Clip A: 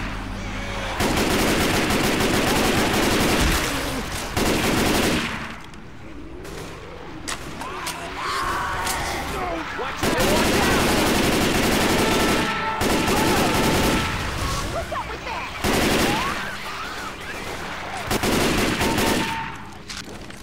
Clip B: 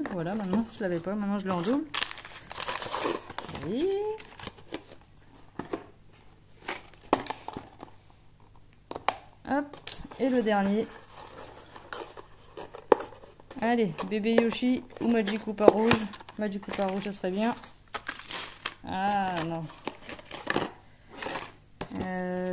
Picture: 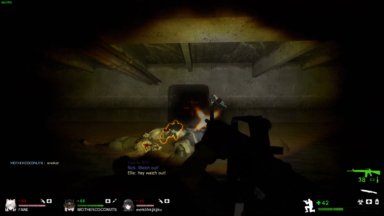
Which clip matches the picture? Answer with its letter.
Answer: A